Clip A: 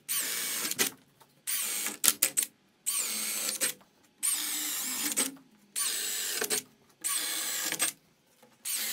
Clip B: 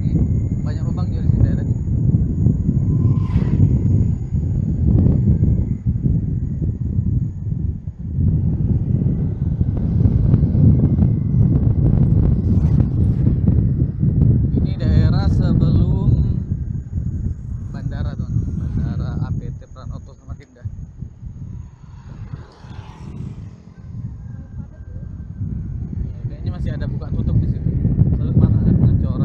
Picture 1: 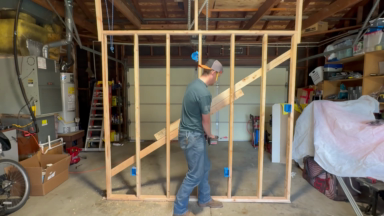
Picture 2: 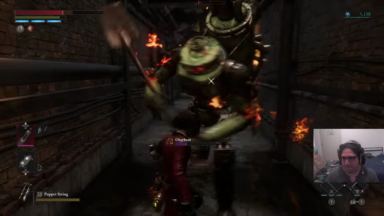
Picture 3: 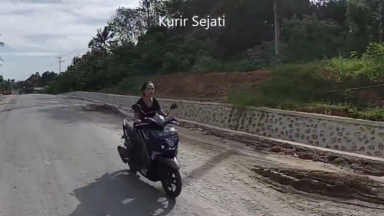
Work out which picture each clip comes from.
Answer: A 1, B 3